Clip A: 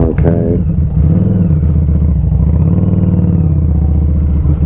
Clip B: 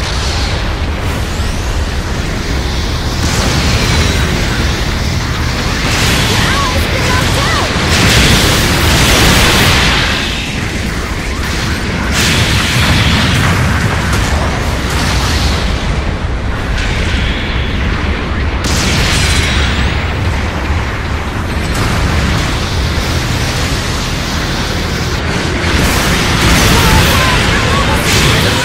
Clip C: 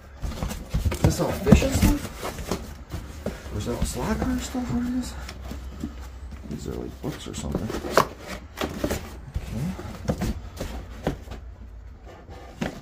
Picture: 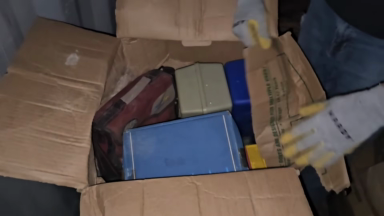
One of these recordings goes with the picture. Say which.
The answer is C